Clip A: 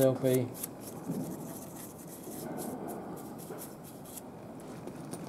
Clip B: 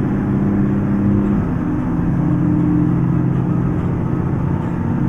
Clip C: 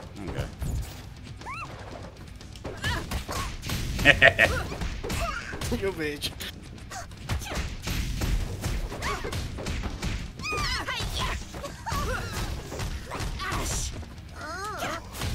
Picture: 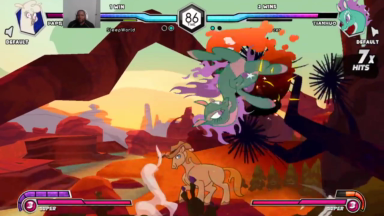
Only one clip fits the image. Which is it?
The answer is C